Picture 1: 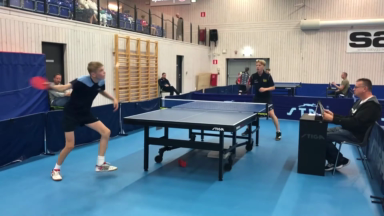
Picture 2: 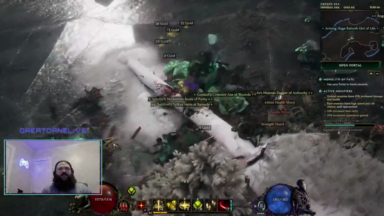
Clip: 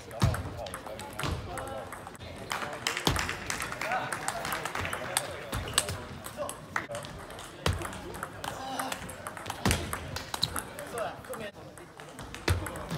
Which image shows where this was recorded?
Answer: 1